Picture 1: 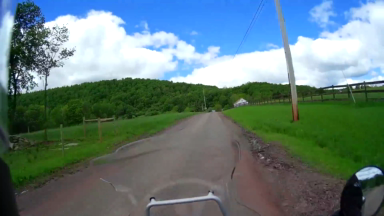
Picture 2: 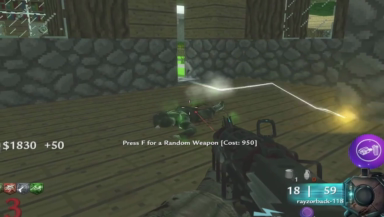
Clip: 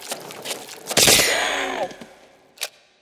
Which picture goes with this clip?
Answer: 2